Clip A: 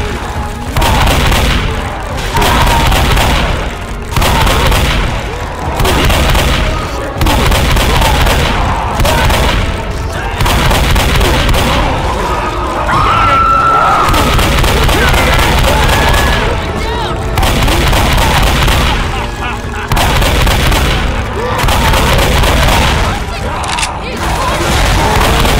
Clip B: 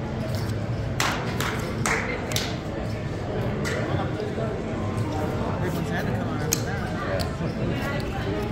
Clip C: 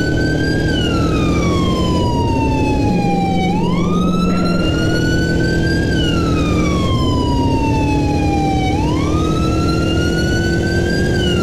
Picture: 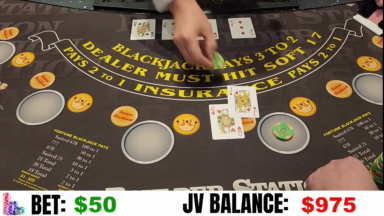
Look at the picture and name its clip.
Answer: B